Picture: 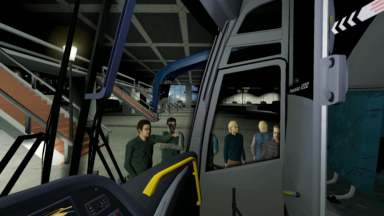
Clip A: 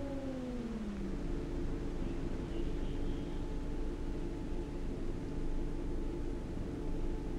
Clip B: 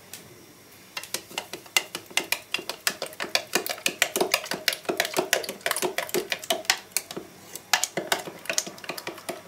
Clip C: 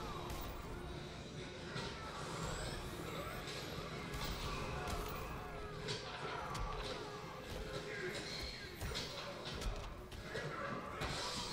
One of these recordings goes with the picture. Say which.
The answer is A